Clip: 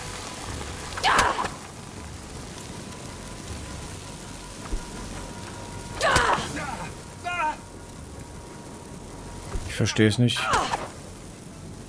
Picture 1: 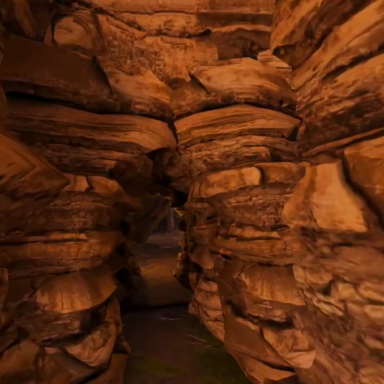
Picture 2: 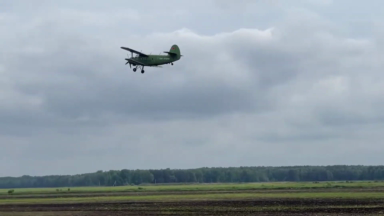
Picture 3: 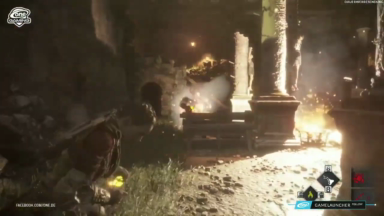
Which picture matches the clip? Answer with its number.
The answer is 3